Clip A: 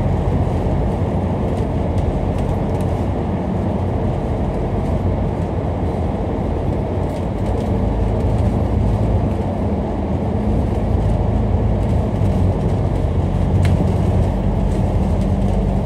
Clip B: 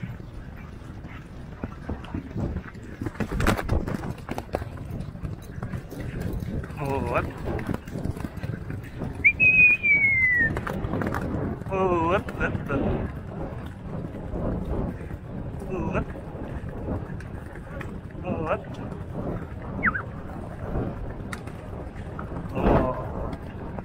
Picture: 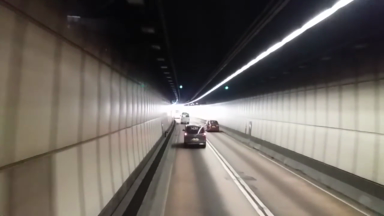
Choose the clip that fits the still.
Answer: A